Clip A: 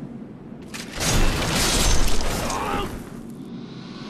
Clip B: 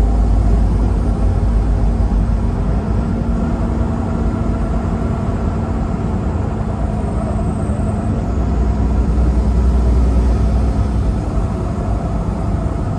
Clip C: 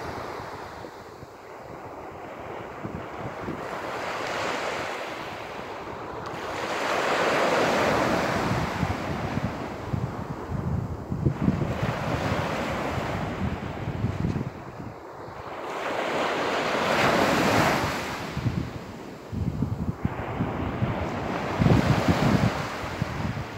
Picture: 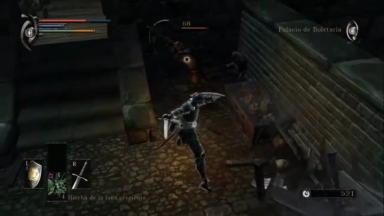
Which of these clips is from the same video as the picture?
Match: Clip A